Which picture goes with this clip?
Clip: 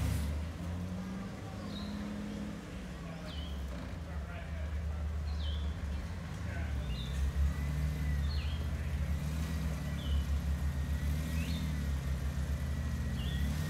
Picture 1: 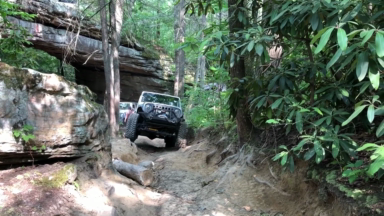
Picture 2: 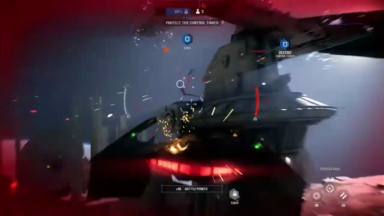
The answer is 1